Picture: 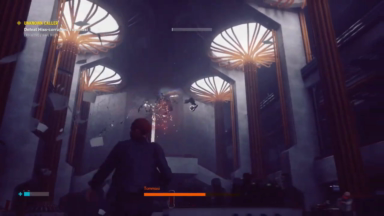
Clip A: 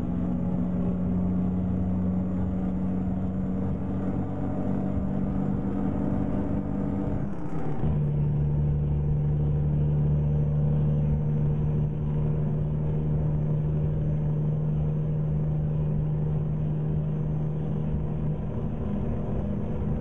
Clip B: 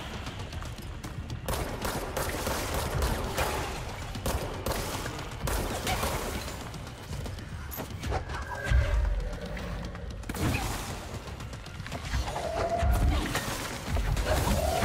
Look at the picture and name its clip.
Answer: B